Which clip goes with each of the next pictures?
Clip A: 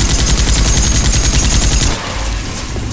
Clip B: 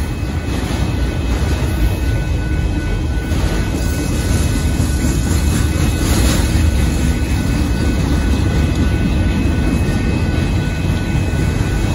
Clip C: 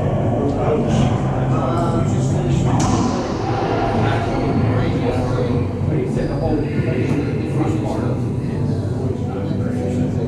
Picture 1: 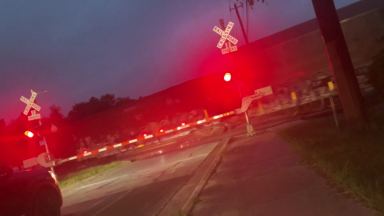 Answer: B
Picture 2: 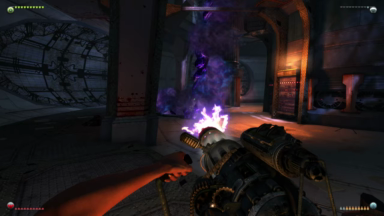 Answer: A